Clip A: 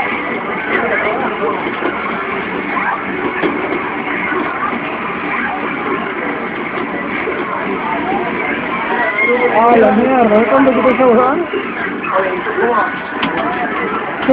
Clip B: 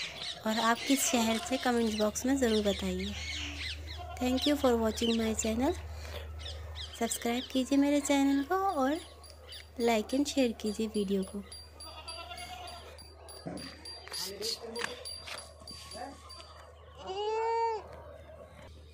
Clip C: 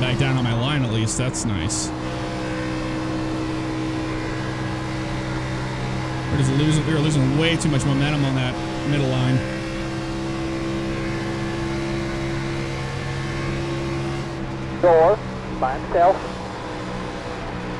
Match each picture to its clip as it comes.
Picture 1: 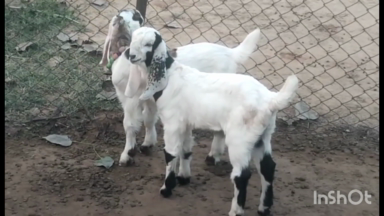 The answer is B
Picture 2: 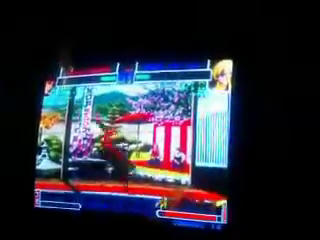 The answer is A